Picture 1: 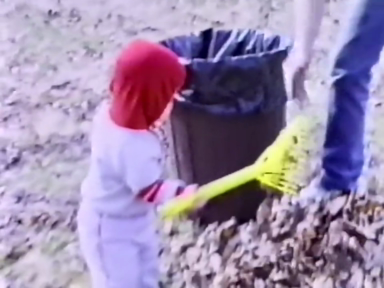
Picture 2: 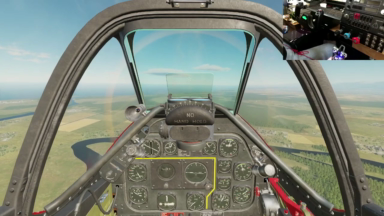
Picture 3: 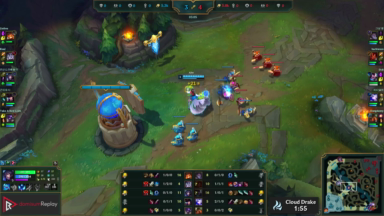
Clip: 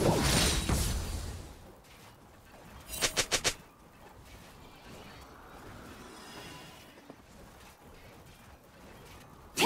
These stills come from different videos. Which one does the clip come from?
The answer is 3